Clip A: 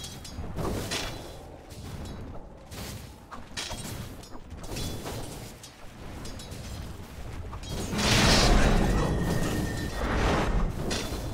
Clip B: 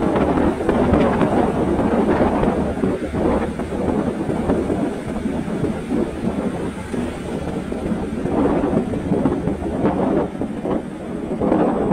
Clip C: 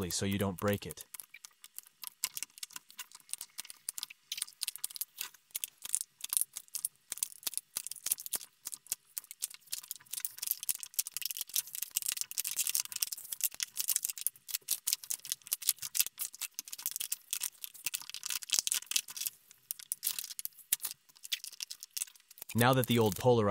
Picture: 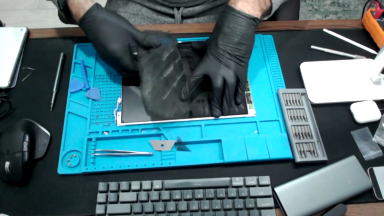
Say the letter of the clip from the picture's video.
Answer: C